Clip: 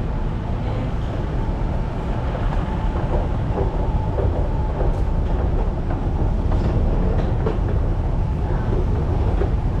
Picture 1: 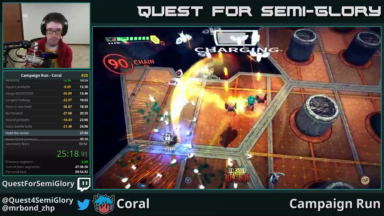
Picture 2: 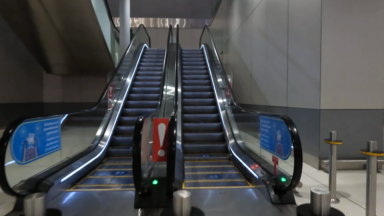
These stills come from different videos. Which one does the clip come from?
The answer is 2